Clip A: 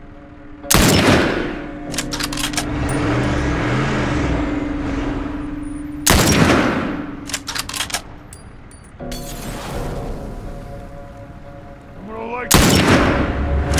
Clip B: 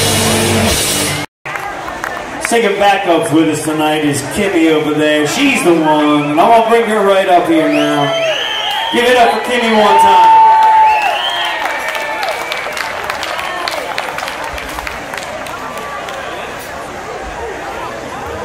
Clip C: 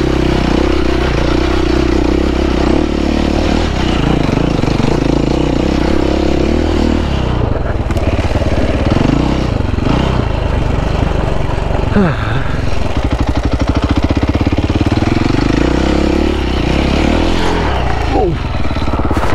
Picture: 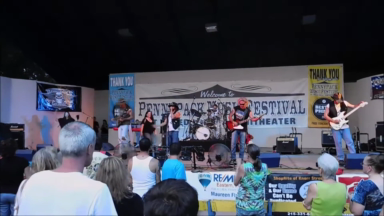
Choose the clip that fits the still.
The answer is B